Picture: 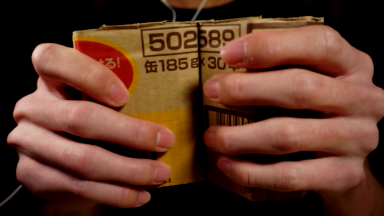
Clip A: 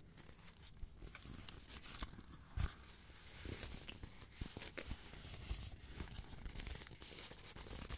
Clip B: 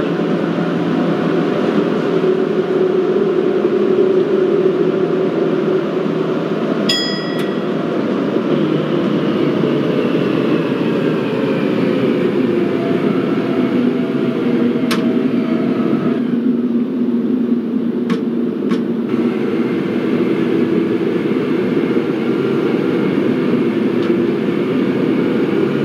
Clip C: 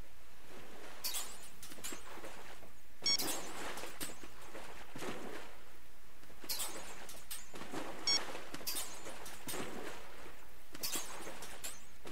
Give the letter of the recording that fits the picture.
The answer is A